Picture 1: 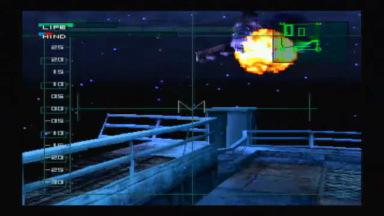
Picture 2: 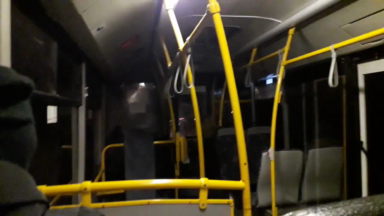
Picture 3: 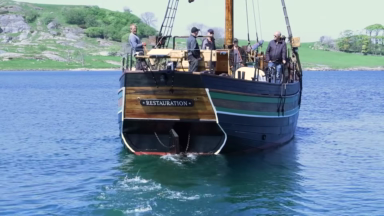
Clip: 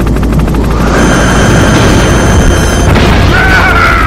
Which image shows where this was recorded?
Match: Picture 1